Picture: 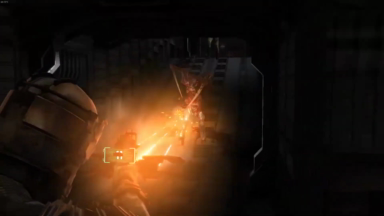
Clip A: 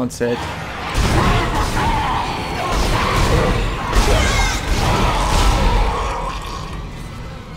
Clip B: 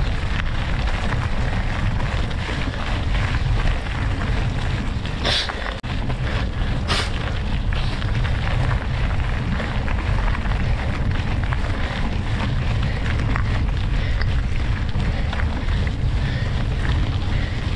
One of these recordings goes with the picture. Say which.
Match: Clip A